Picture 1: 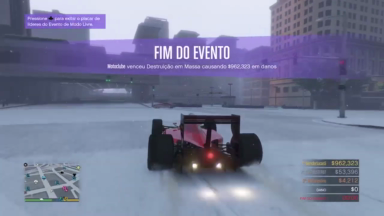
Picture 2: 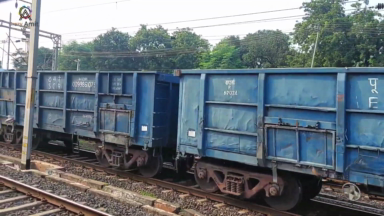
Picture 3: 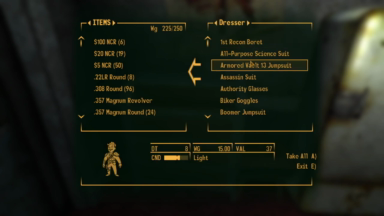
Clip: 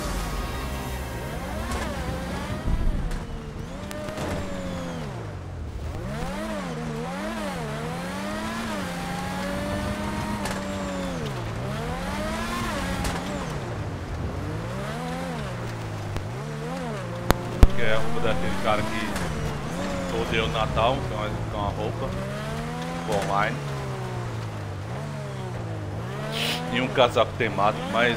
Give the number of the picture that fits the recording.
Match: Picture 1